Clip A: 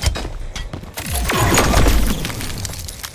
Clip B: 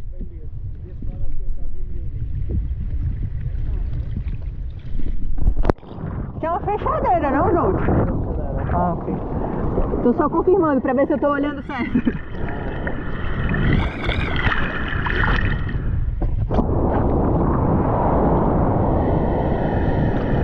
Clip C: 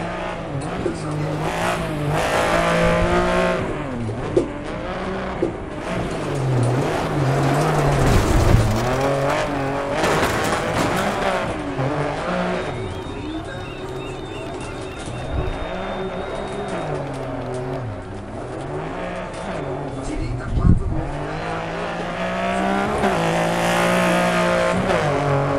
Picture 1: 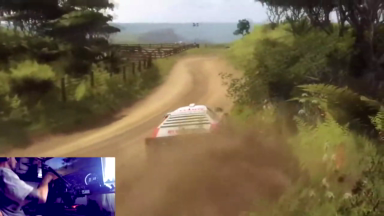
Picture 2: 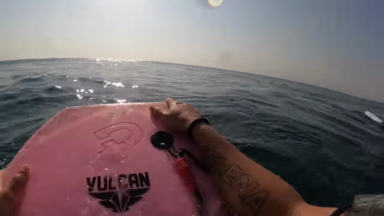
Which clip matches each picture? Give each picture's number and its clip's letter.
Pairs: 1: C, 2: B